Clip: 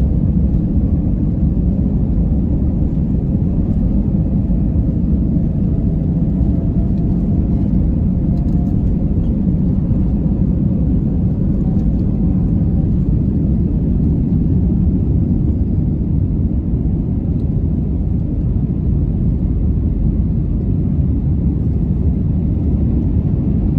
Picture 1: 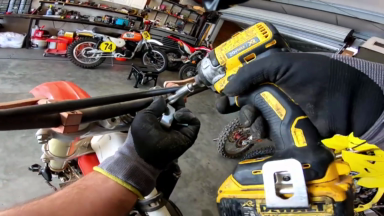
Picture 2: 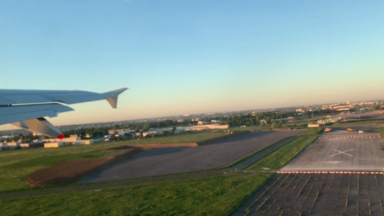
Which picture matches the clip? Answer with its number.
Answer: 2